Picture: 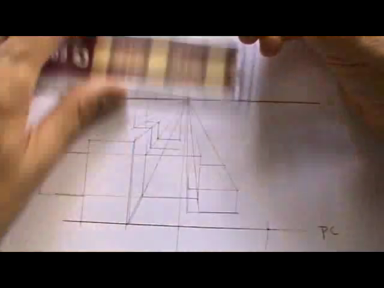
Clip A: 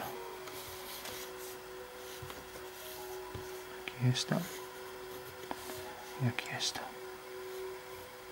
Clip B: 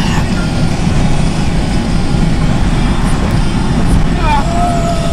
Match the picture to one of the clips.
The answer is A